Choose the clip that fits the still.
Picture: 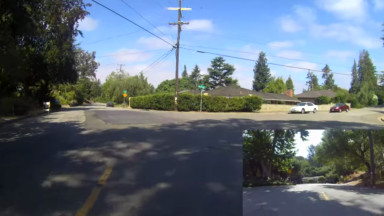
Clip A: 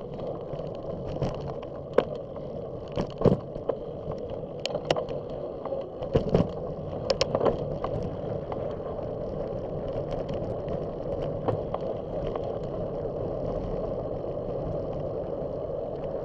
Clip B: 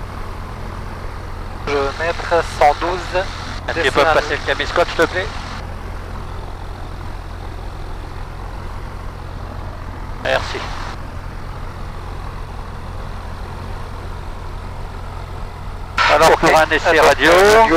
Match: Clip A